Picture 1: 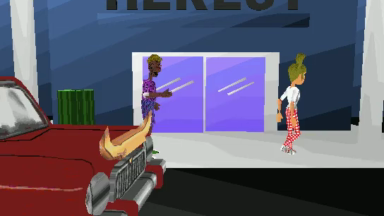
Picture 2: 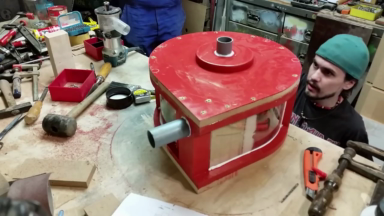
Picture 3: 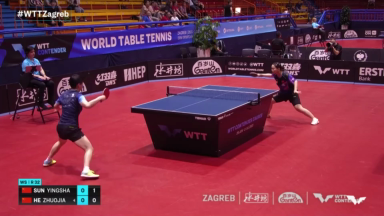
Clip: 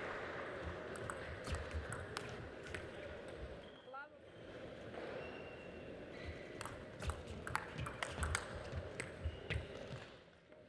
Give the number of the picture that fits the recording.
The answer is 3